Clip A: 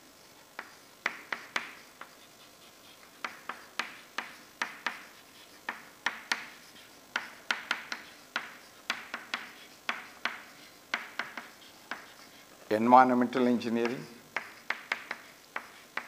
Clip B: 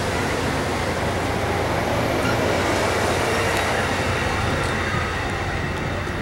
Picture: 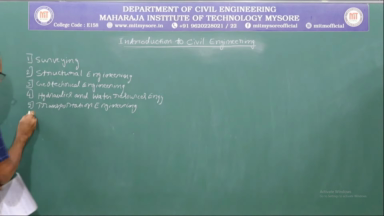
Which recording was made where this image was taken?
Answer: A